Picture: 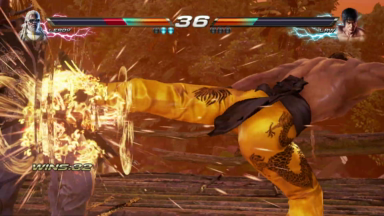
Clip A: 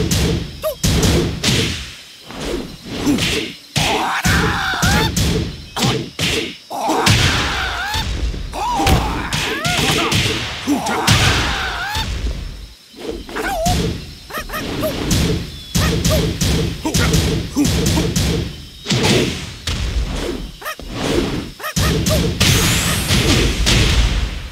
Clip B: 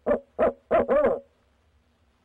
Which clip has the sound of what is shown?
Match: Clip A